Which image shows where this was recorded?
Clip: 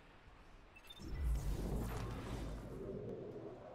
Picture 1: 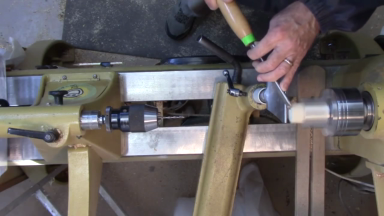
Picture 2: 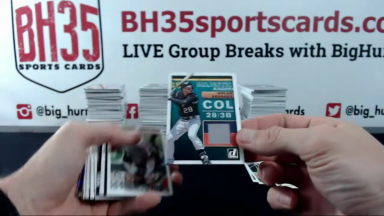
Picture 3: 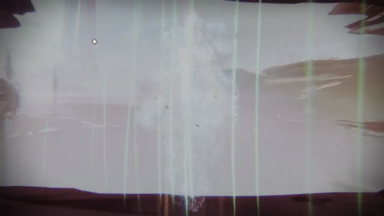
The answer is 3